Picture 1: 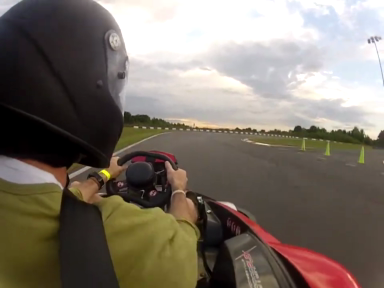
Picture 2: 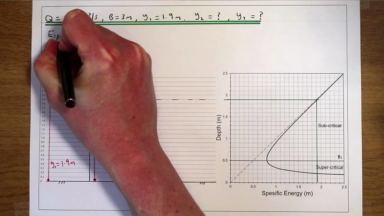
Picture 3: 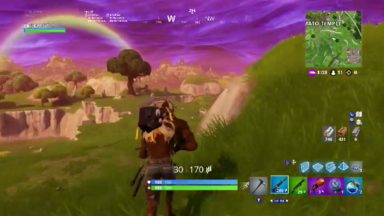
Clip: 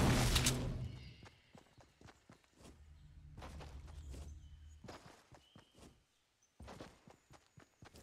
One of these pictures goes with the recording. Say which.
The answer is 3